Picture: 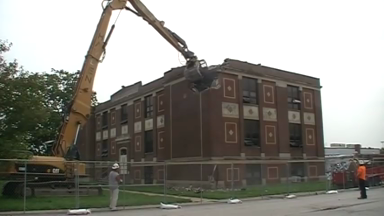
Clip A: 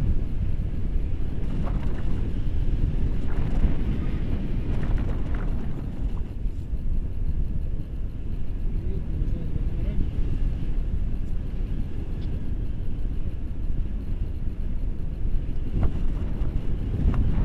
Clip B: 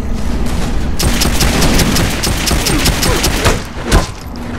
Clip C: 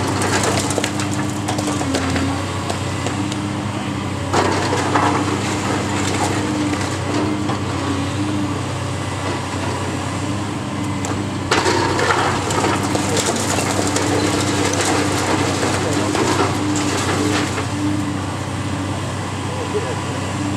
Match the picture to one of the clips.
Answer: C